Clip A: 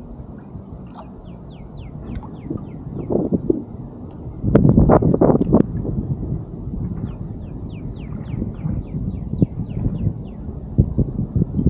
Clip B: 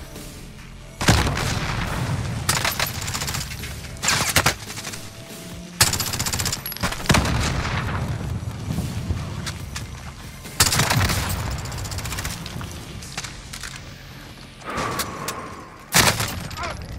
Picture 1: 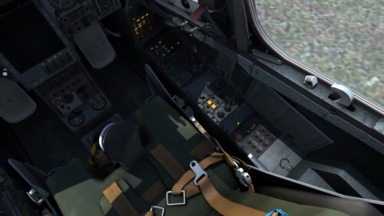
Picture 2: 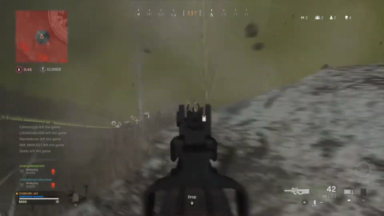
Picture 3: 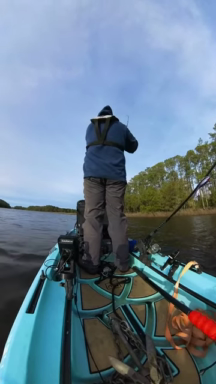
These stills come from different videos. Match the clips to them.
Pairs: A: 3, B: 2